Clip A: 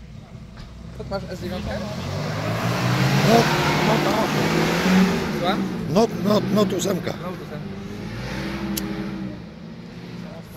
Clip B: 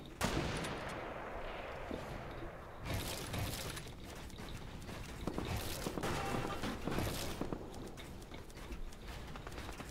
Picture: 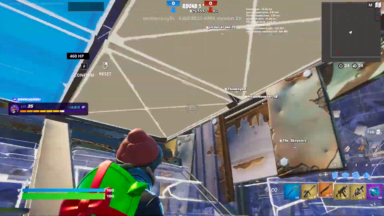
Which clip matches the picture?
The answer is B